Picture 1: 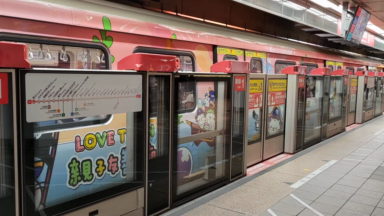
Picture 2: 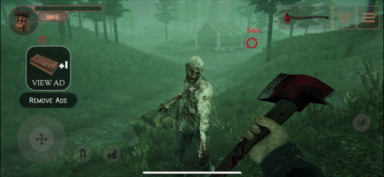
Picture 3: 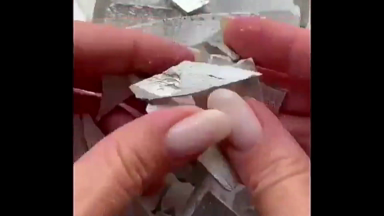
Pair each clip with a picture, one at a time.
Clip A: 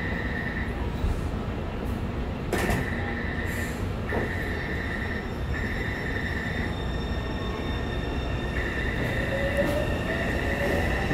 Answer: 1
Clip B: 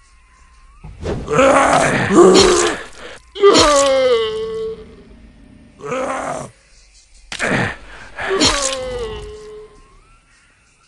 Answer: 2